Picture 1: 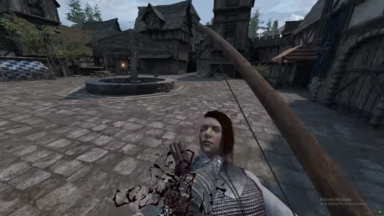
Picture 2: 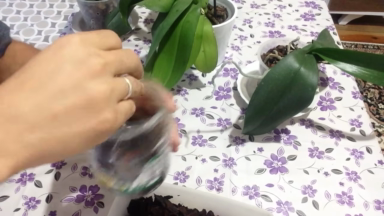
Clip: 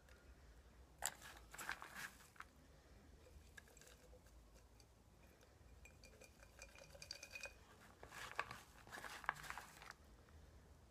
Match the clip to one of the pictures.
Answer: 2